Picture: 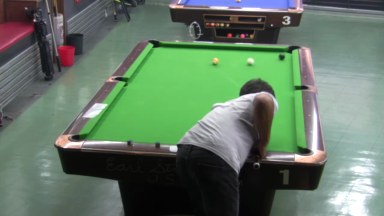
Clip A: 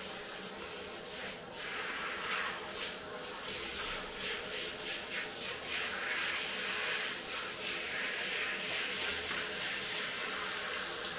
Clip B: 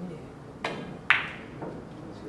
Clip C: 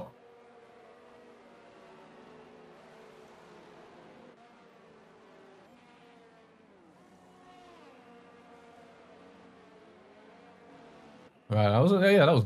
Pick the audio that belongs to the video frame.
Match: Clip B